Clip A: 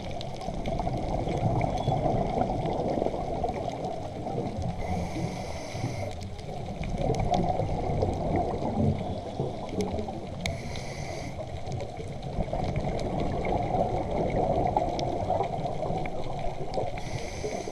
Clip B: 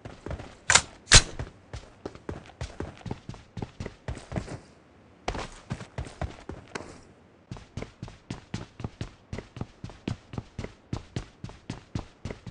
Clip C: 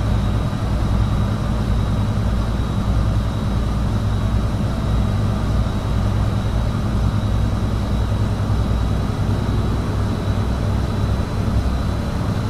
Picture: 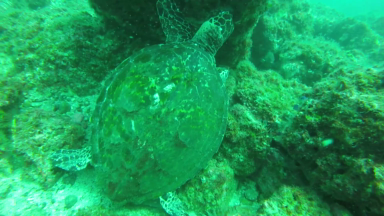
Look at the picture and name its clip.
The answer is A